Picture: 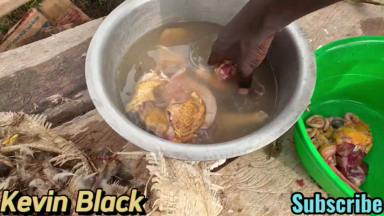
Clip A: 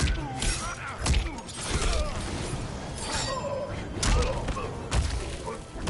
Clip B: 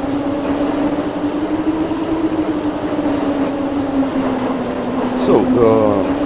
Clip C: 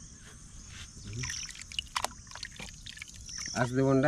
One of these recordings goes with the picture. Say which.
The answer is C